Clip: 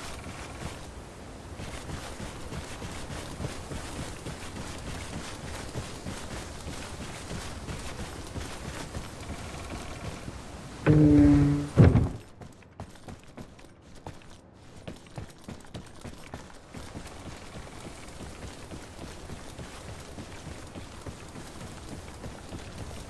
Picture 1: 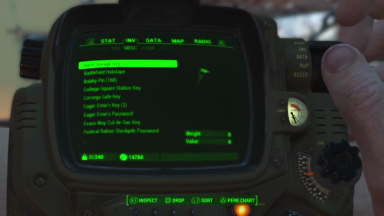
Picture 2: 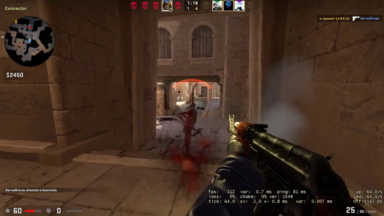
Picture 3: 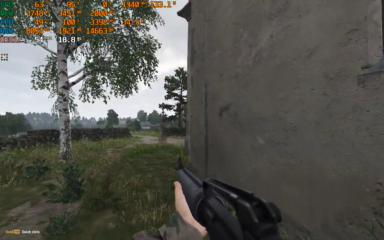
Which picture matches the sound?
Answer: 3